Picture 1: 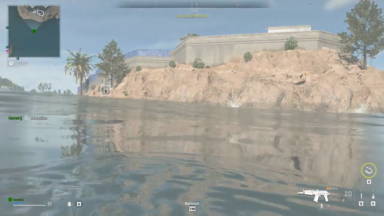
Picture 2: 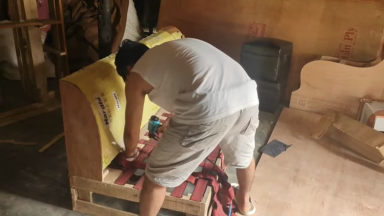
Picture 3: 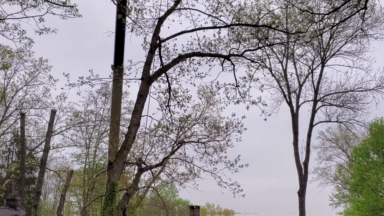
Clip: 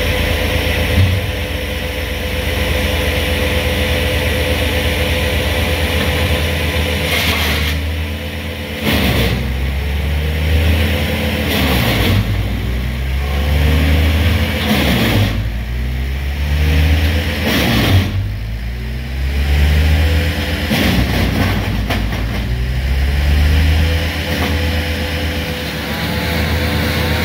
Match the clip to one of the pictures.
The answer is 3